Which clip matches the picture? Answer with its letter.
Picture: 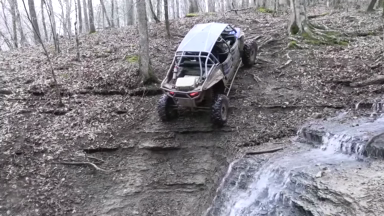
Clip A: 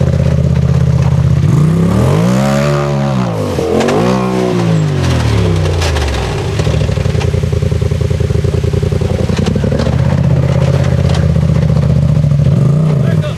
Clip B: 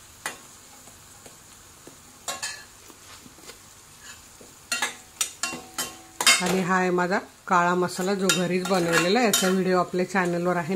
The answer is A